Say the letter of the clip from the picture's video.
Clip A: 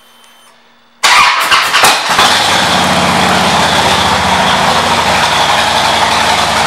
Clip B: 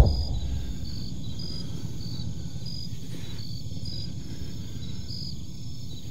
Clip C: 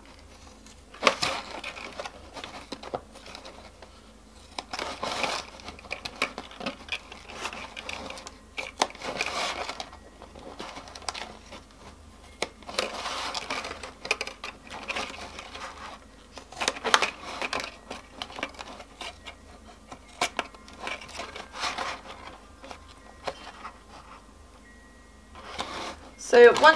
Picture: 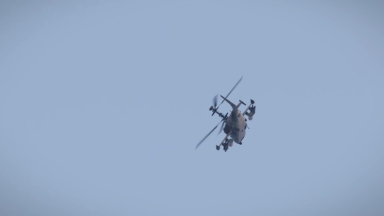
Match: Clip B